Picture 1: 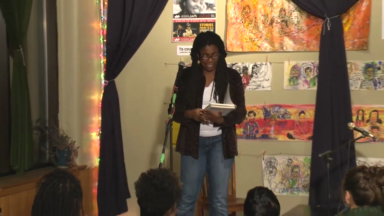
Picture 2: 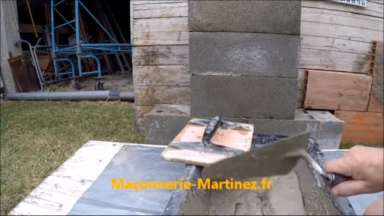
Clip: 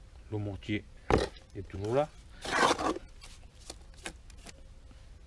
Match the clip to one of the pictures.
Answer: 2